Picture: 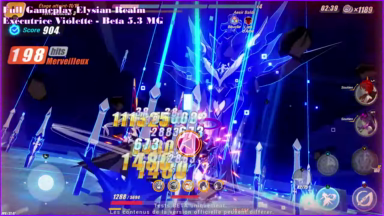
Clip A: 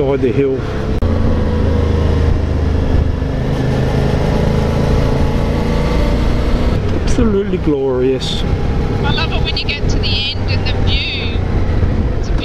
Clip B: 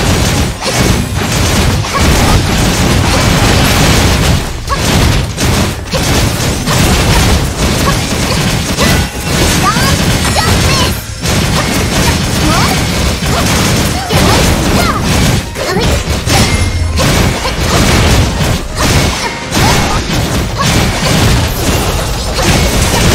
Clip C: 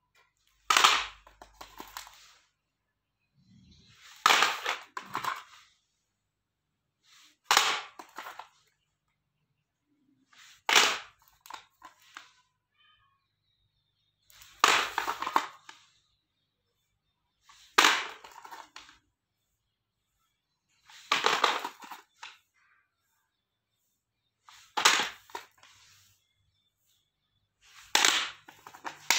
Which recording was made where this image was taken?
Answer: B